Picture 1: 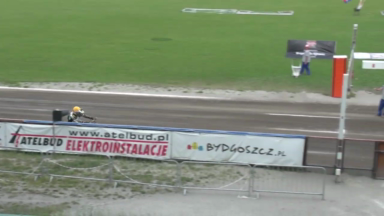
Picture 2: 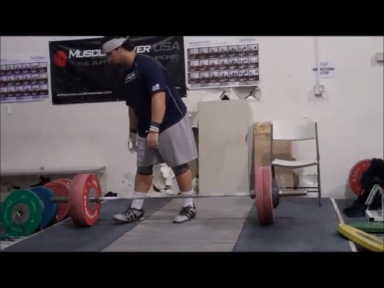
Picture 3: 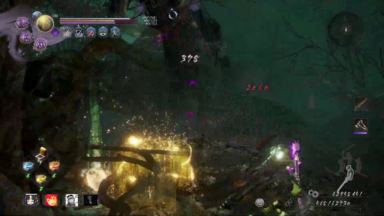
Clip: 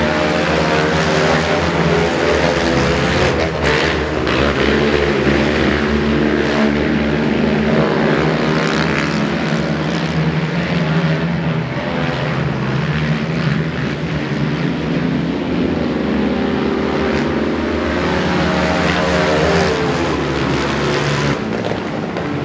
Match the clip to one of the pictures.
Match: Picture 1